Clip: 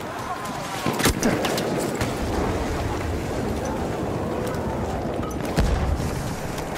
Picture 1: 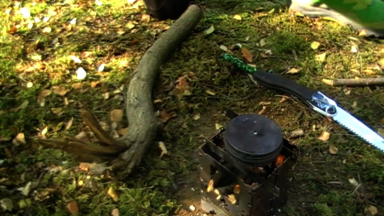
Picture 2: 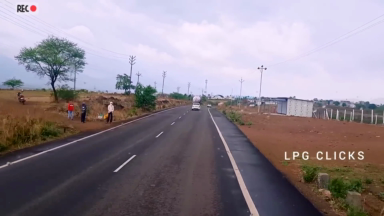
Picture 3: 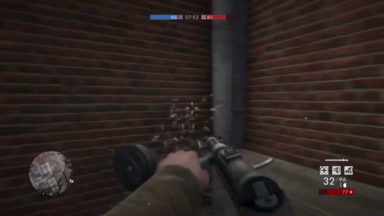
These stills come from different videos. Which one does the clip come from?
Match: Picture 3